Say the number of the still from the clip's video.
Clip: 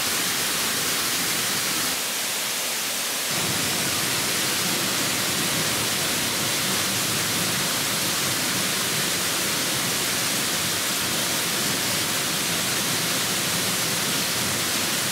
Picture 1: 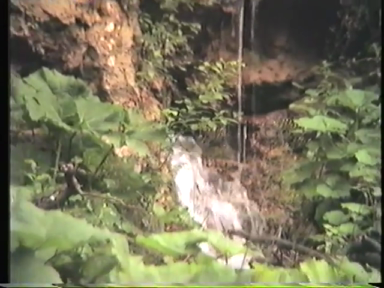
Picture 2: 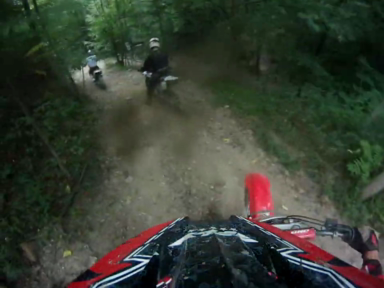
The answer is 1